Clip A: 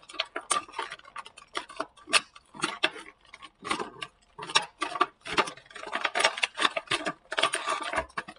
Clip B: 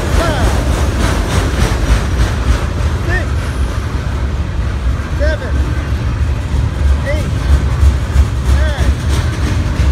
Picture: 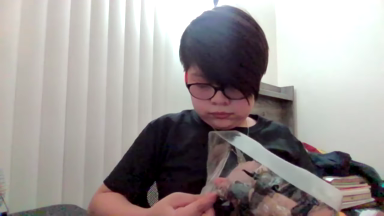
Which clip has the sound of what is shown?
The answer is A